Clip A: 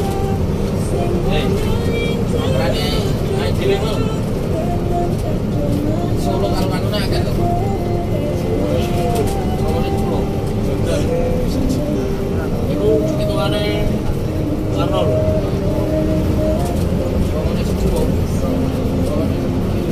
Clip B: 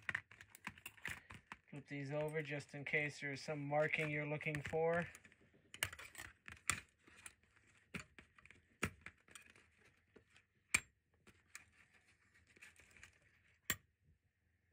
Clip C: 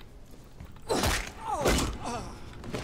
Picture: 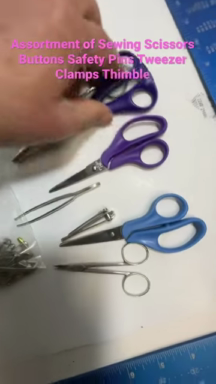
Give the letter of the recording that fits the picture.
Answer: B